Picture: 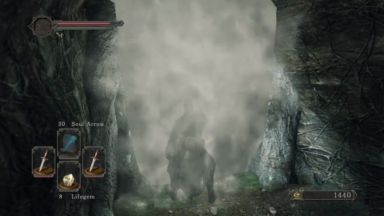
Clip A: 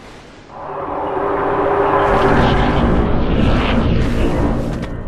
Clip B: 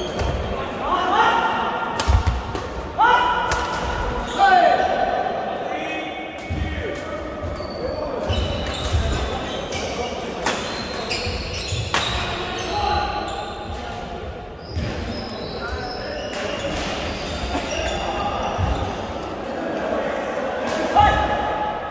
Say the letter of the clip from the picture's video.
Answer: A